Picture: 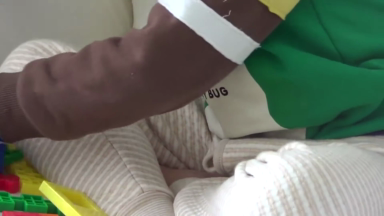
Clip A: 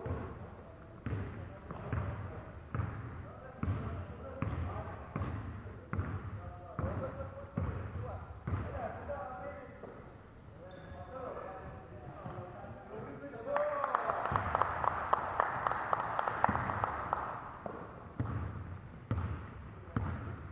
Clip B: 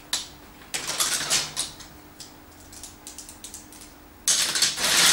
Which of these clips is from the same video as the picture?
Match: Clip B